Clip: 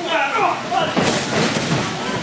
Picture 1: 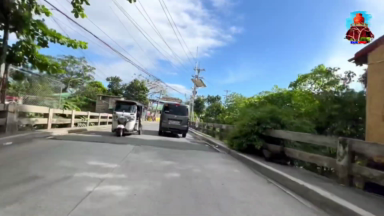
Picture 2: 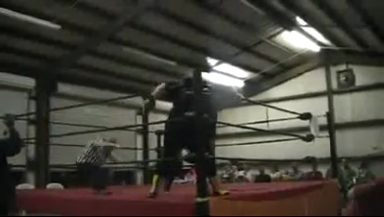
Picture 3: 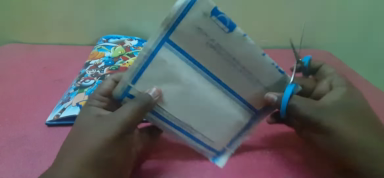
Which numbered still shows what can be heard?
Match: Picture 2